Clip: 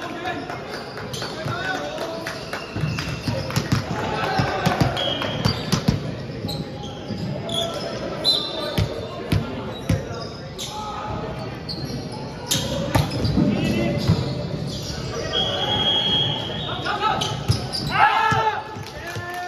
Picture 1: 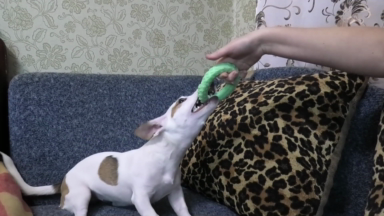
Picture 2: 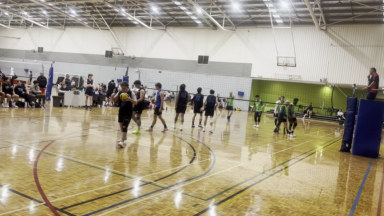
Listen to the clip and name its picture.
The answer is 2